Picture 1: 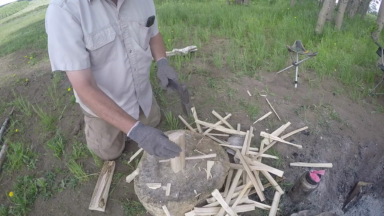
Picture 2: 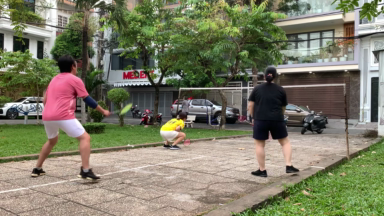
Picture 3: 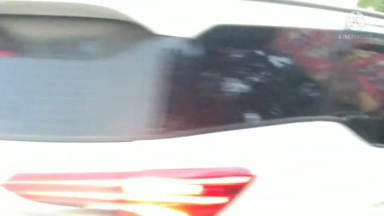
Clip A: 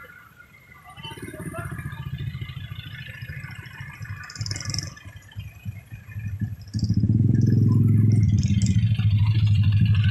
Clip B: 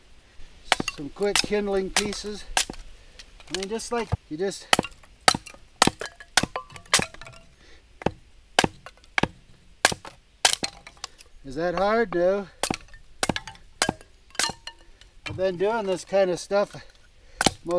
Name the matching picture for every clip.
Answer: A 3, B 1